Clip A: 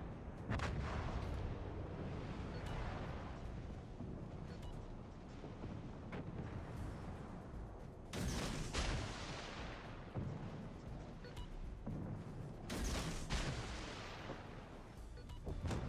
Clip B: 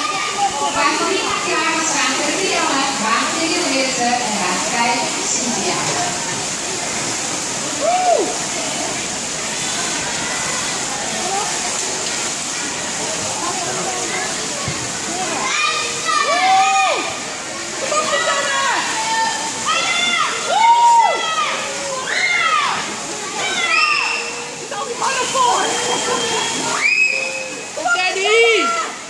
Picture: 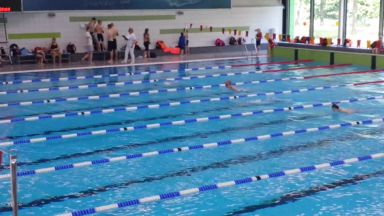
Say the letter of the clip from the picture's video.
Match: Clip B